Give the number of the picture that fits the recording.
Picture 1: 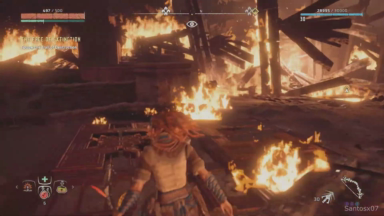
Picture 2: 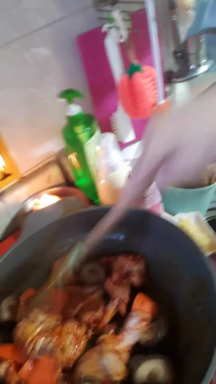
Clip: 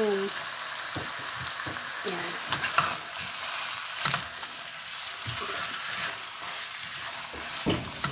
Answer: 2